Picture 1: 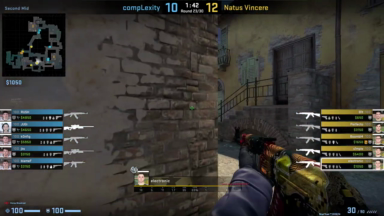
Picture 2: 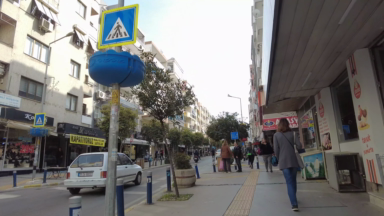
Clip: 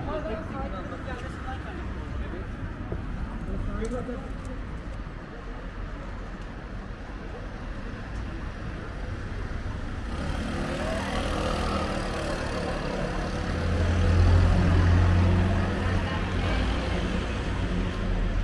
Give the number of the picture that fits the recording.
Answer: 2